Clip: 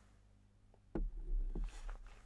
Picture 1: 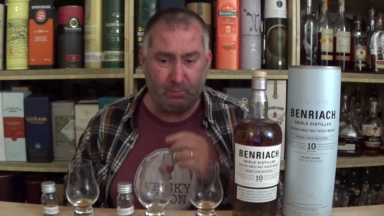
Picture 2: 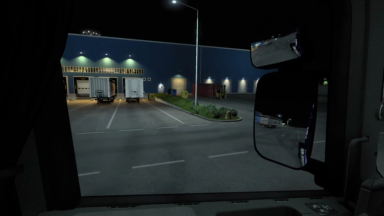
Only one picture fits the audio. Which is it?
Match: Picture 1